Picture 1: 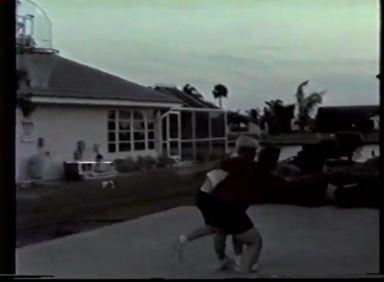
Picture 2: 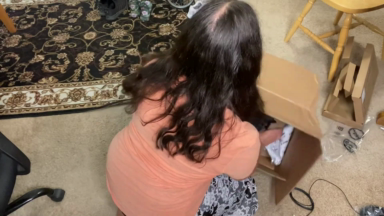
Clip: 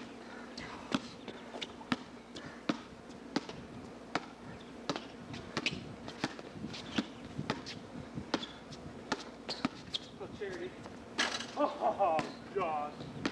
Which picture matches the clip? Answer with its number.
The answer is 1